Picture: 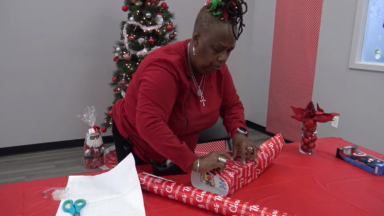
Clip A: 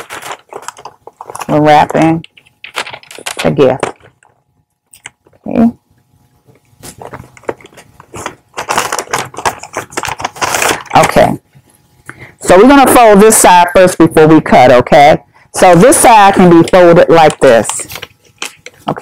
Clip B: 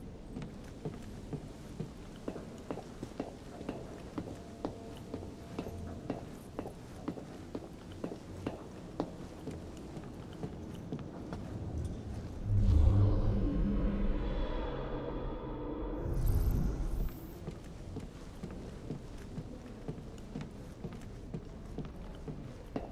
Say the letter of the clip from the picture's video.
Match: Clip A